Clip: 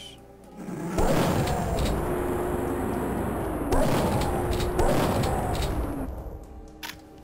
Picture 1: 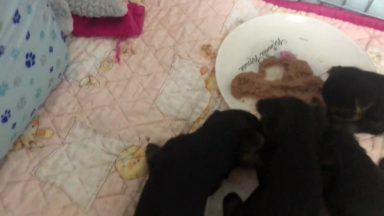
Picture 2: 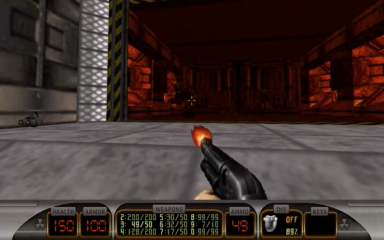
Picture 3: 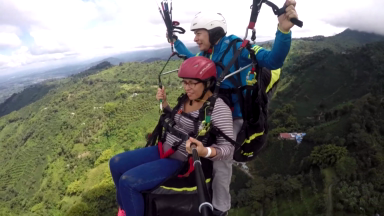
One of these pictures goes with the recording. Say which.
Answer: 2